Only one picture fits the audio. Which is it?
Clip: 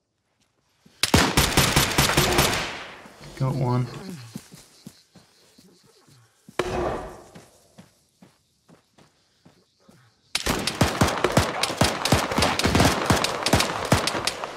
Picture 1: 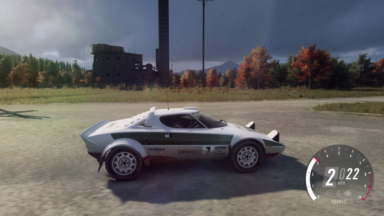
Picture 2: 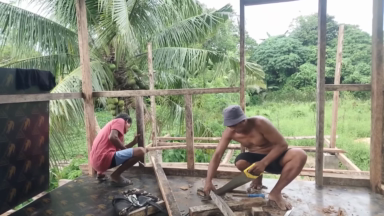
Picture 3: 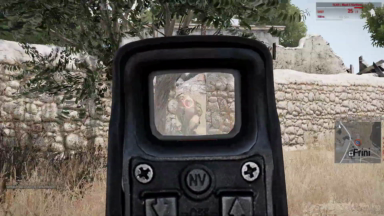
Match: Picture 3